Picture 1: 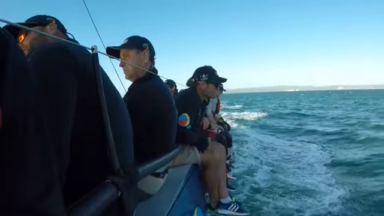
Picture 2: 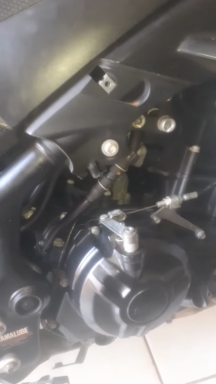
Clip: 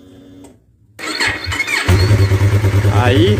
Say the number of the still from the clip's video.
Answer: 2